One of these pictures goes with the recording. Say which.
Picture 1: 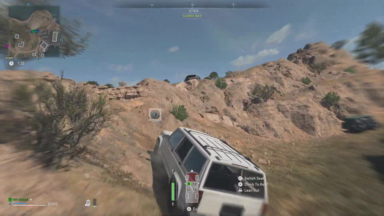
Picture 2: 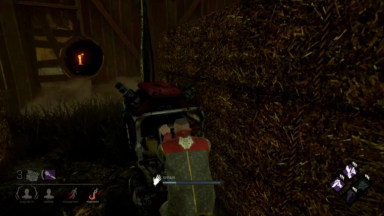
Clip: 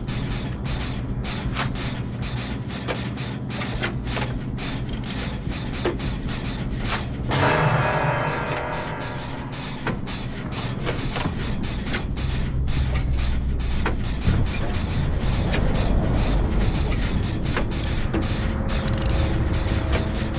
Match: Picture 2